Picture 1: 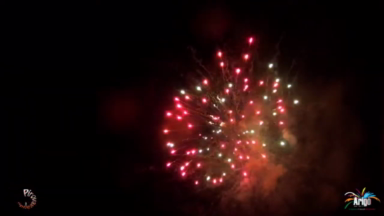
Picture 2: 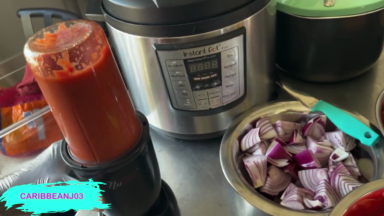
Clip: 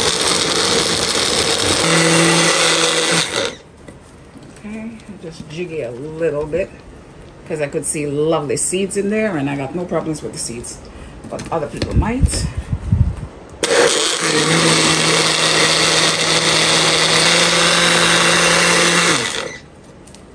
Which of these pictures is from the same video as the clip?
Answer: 2